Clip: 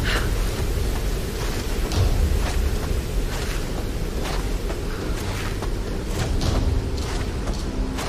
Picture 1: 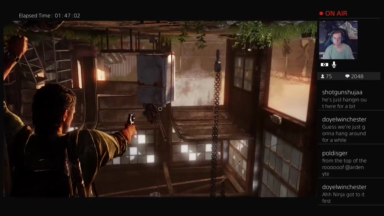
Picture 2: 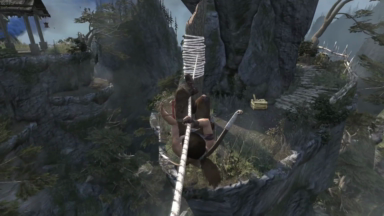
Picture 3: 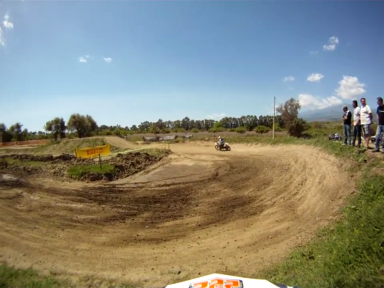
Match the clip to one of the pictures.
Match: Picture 2